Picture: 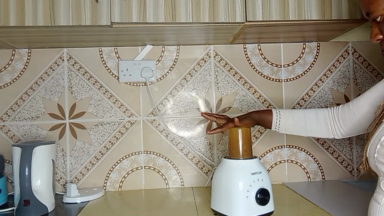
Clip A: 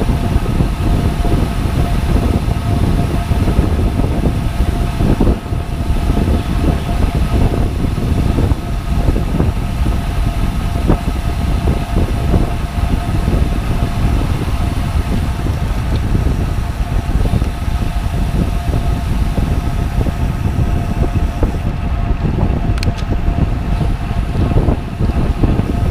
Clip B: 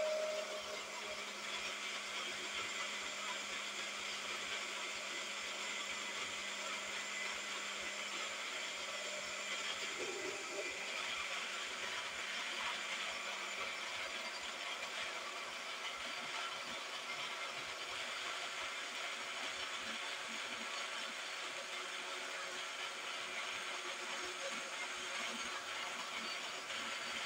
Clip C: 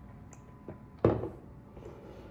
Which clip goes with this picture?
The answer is B